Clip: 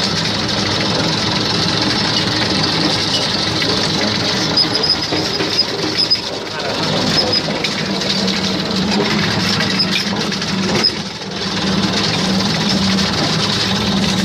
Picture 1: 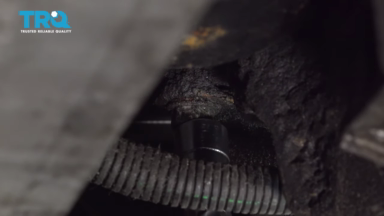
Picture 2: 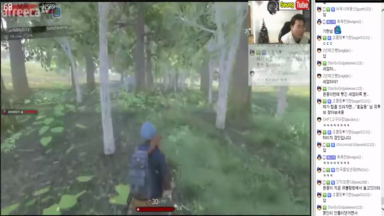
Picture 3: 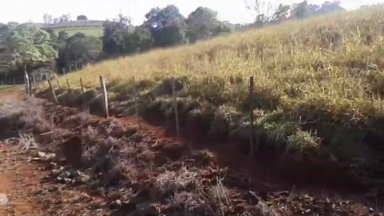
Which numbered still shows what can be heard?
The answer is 3